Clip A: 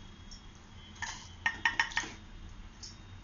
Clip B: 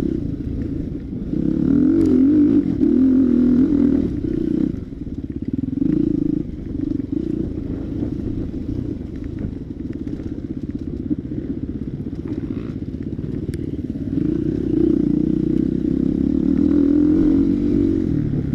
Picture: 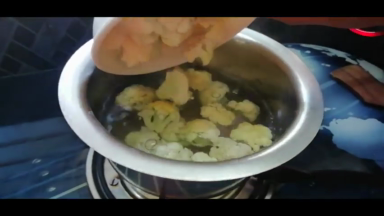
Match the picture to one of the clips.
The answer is A